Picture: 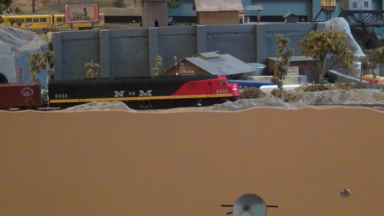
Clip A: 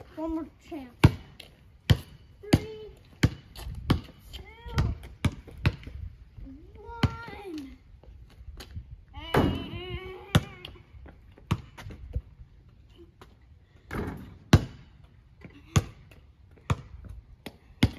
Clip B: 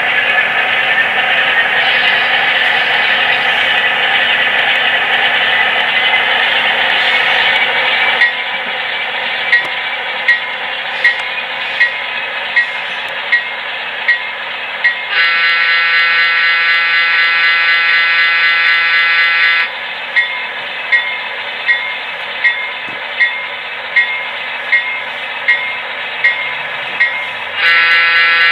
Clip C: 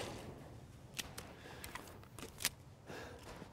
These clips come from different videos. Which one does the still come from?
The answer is B